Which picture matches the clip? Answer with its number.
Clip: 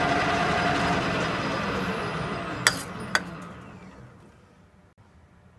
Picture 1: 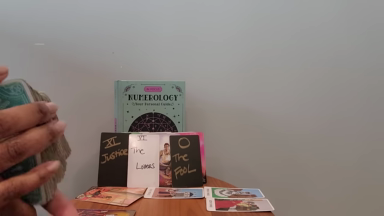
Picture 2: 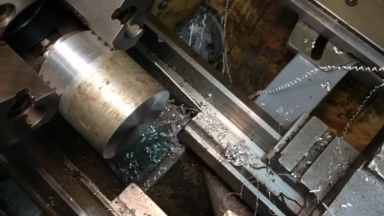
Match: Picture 2